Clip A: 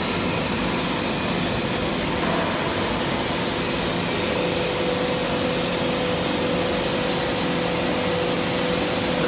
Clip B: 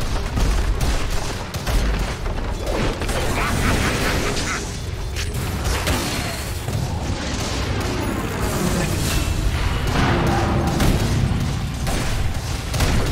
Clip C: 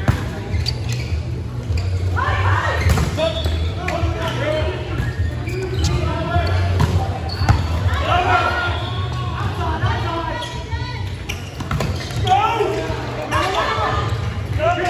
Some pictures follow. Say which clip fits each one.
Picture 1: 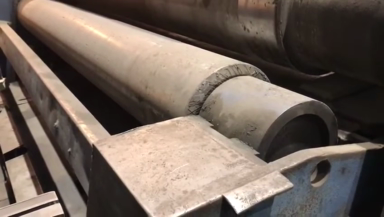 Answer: A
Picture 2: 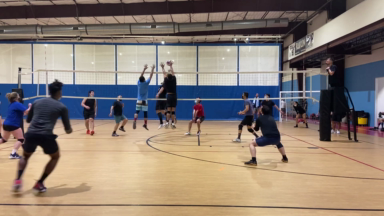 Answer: C